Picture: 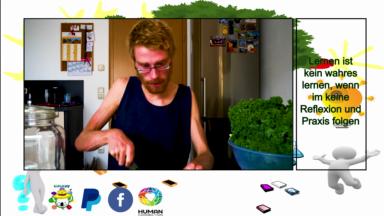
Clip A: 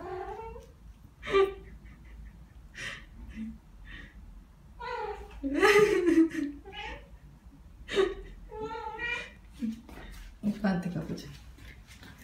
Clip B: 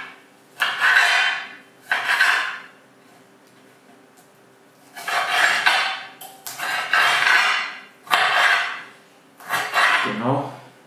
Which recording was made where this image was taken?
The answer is B